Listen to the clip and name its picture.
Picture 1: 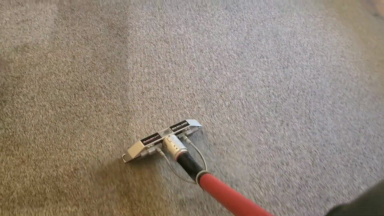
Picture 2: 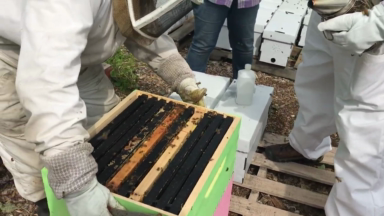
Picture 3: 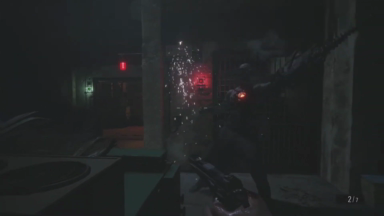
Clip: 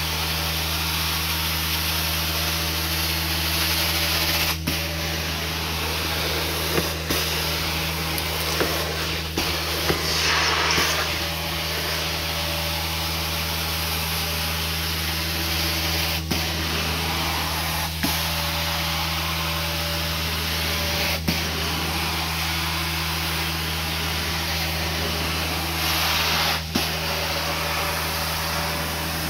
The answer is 1